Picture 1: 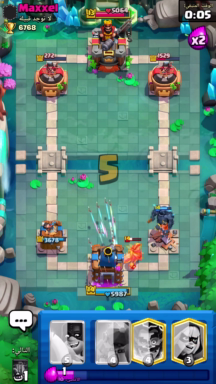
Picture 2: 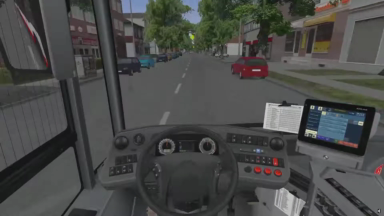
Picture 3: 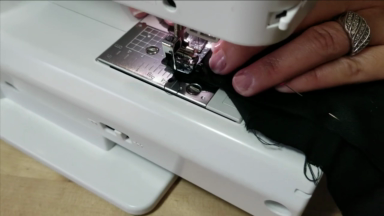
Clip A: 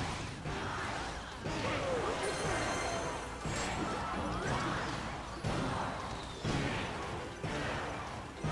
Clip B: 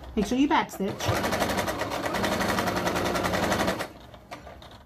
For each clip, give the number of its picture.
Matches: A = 1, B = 3